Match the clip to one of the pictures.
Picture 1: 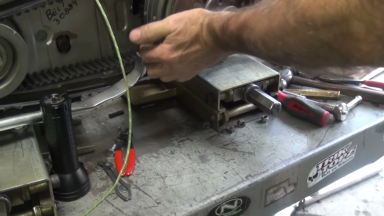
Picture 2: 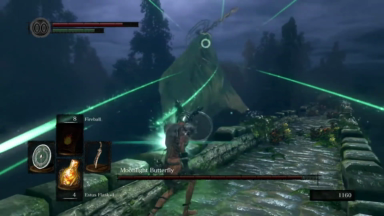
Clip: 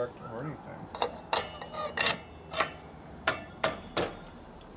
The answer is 1